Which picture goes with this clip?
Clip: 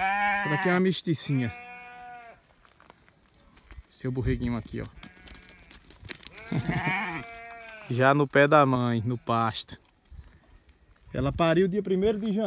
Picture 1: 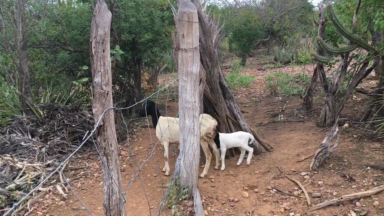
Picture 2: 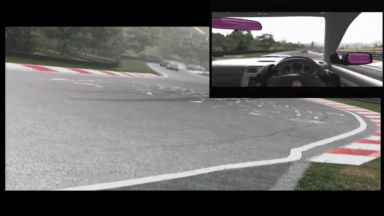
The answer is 1